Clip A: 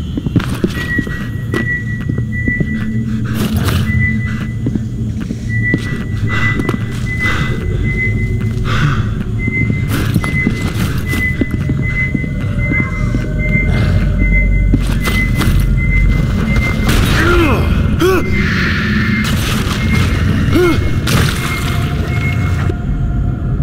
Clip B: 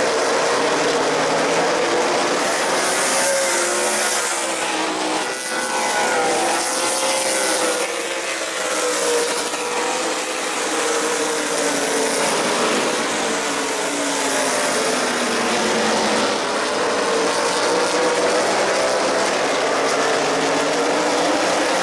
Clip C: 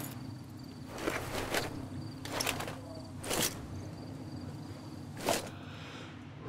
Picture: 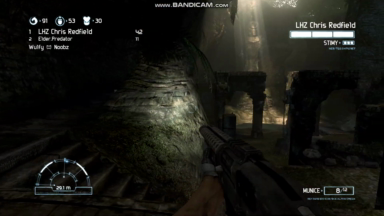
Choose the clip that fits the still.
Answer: A